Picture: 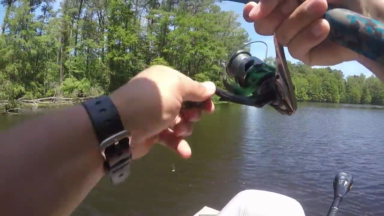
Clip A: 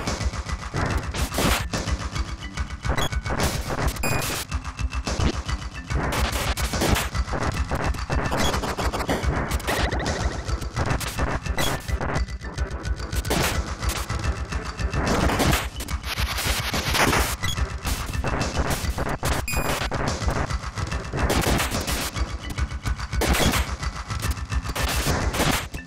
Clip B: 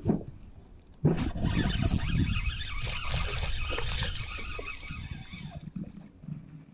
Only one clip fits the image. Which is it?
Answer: B